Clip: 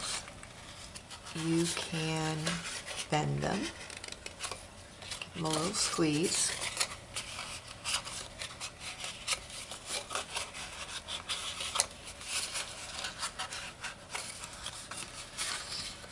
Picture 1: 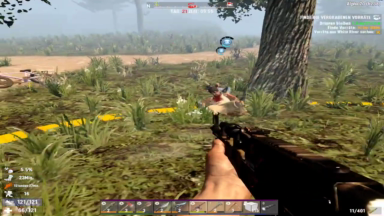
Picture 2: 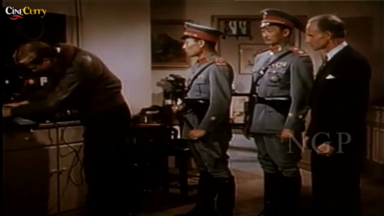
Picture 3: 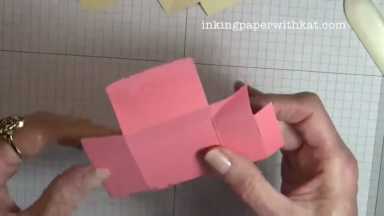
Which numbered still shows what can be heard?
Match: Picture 3